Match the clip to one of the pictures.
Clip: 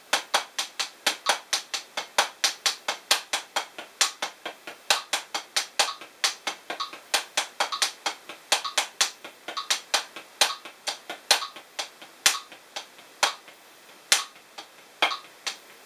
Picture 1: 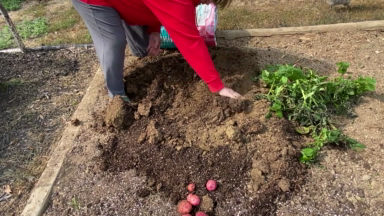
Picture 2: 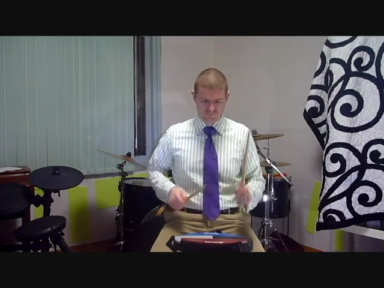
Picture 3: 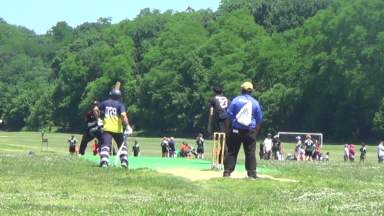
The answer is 2